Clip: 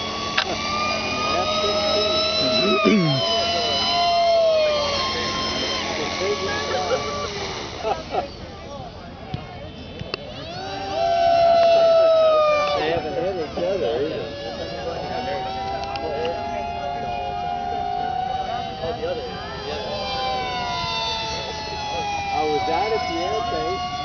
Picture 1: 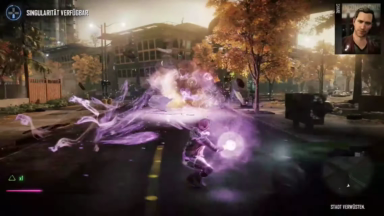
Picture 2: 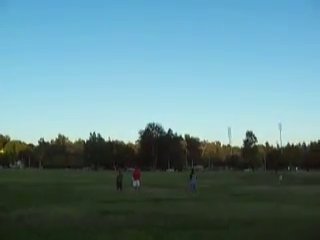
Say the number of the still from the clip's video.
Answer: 2